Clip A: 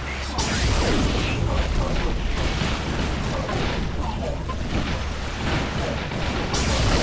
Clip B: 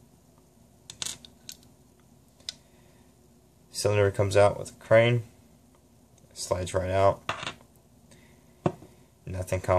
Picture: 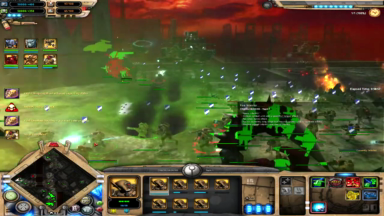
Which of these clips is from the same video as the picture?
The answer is A